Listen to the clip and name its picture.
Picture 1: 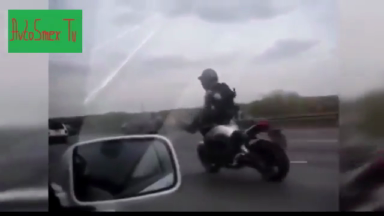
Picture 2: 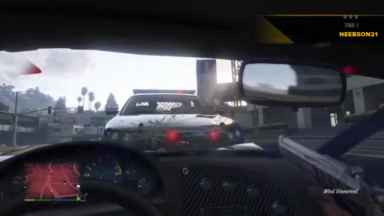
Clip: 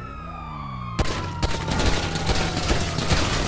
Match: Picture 2